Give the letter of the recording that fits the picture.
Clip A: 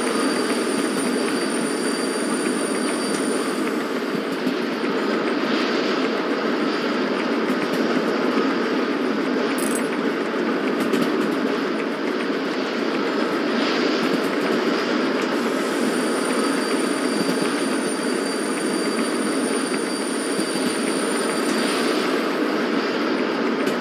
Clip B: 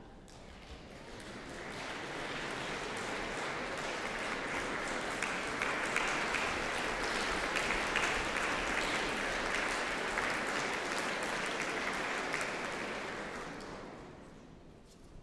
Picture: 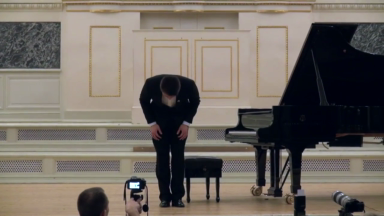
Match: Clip B